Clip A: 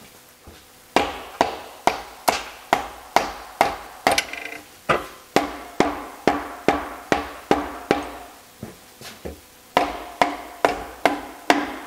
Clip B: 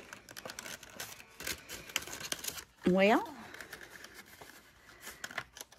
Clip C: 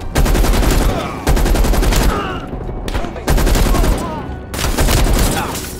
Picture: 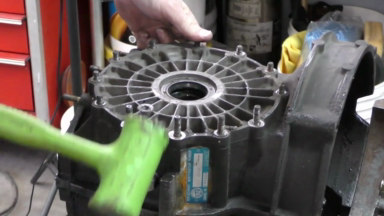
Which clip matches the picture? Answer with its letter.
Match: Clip A